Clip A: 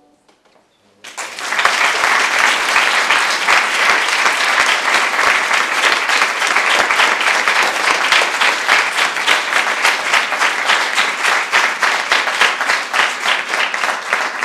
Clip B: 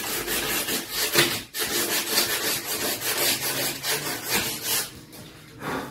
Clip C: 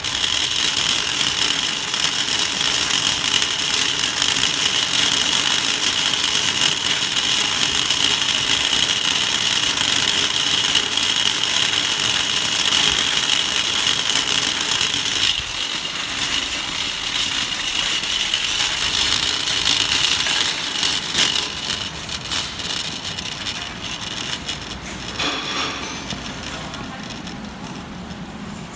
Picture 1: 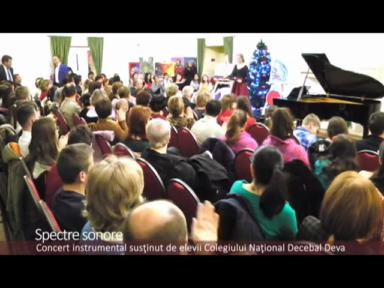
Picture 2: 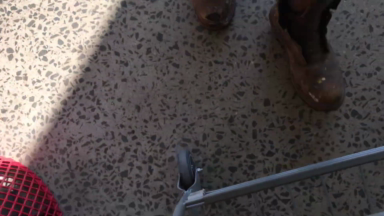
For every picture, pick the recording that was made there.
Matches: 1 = A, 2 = C